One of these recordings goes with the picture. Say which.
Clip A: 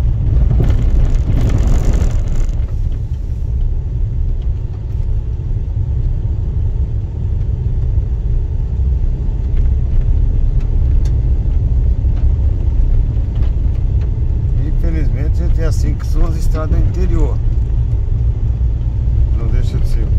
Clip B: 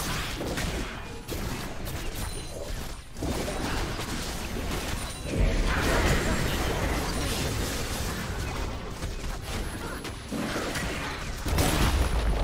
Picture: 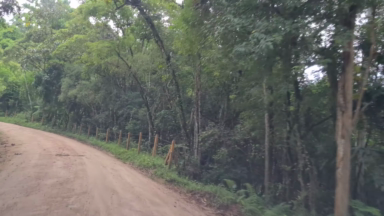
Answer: A